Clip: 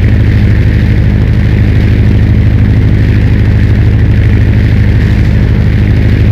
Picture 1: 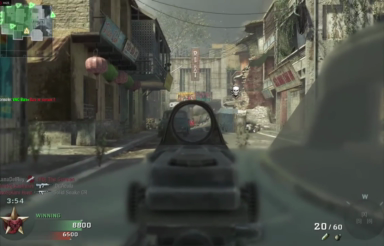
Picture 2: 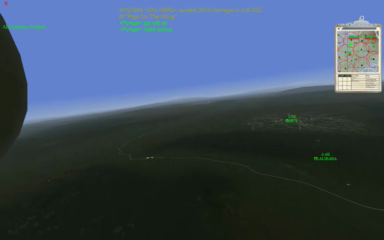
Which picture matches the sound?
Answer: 2